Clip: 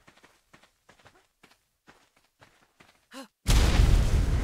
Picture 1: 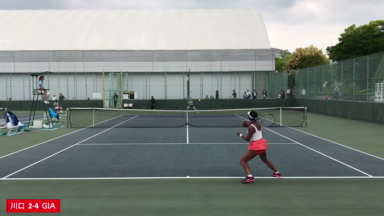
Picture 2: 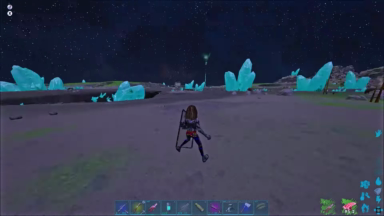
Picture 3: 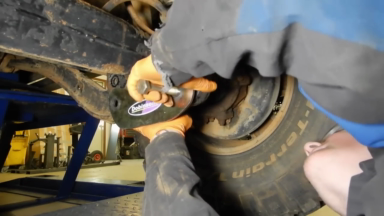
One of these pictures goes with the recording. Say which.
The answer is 2